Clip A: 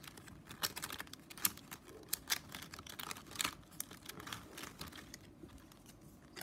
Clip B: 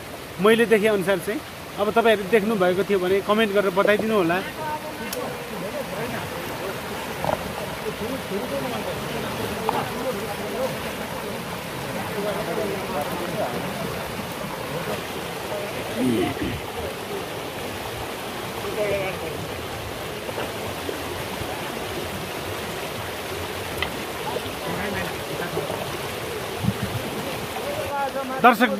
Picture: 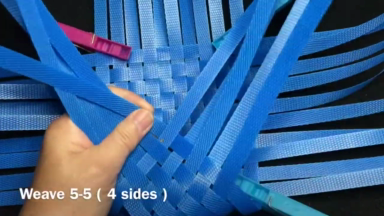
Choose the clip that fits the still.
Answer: A